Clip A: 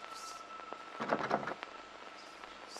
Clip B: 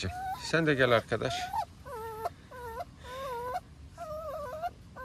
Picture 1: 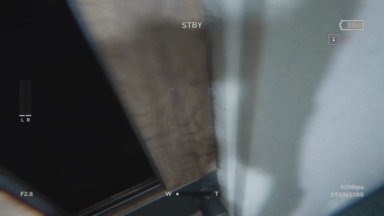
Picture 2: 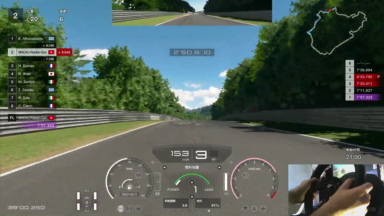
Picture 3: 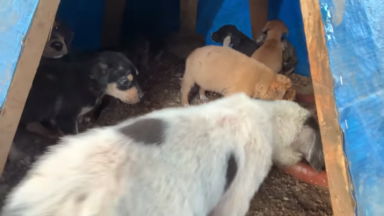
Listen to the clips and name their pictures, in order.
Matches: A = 1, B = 3